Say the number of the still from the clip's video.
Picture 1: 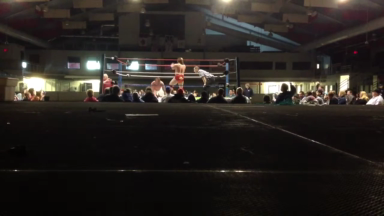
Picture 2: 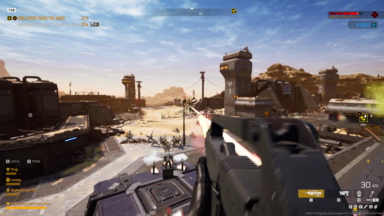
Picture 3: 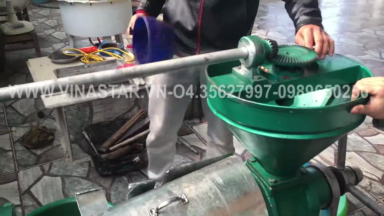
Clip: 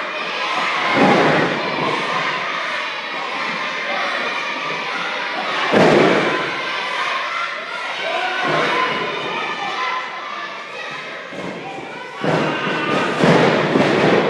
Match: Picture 1